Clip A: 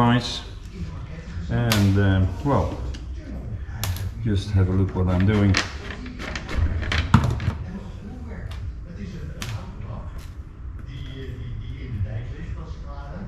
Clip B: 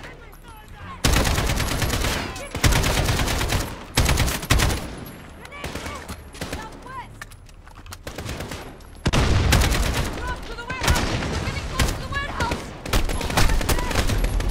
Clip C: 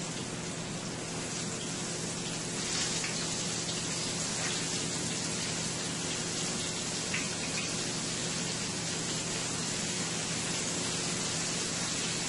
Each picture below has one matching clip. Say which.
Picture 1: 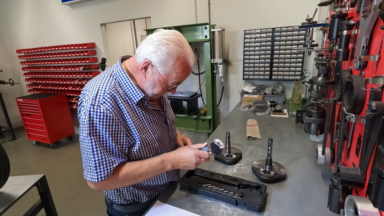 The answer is A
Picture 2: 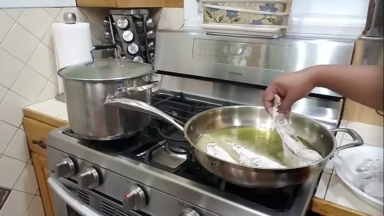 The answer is C